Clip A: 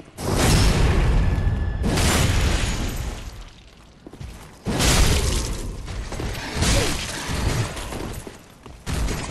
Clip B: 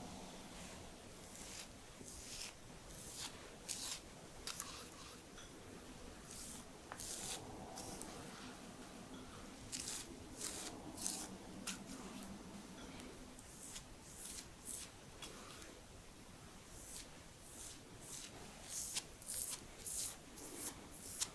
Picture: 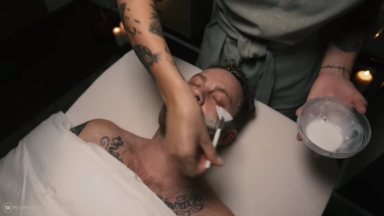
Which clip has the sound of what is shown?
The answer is B